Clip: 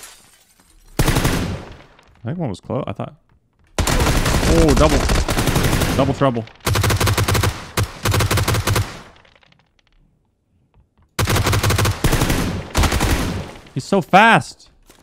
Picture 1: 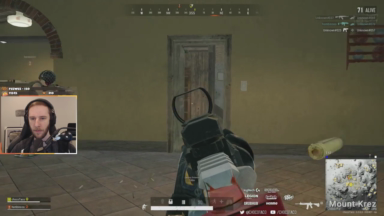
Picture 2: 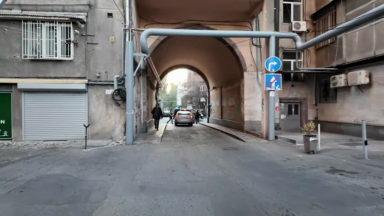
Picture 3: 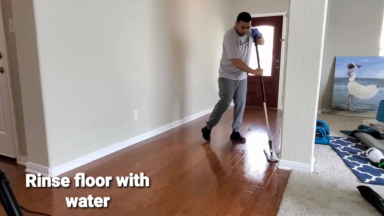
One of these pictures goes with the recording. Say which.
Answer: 1